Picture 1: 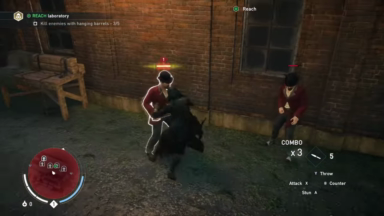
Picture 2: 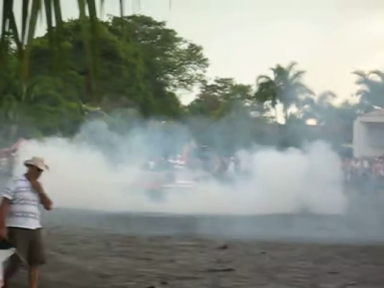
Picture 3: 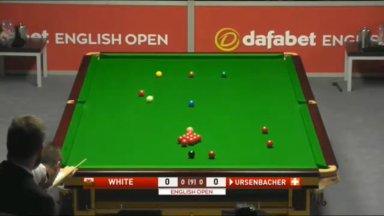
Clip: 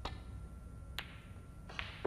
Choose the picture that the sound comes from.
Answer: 3